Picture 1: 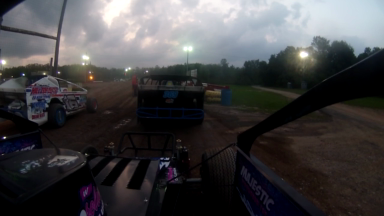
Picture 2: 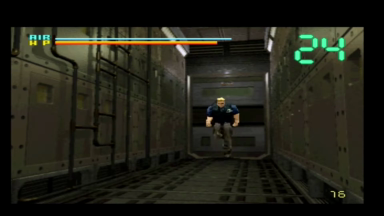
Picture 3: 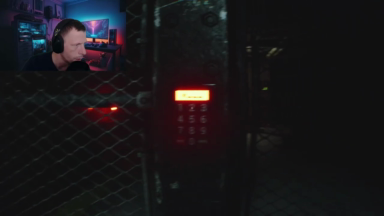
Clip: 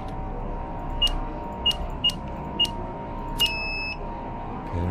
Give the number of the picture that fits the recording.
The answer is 3